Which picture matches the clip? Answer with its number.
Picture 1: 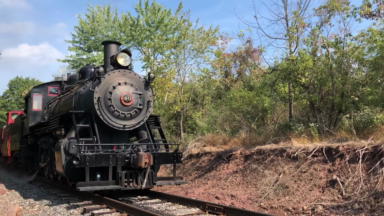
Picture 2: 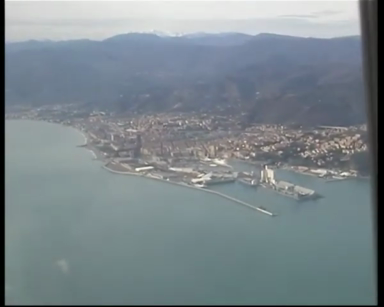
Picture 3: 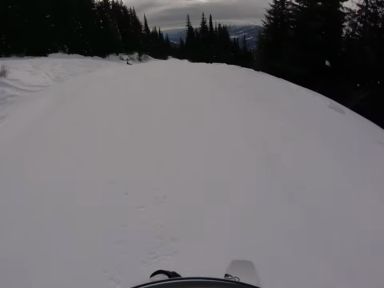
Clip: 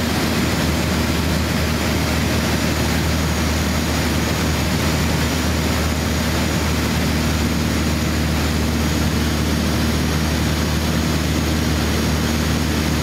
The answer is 2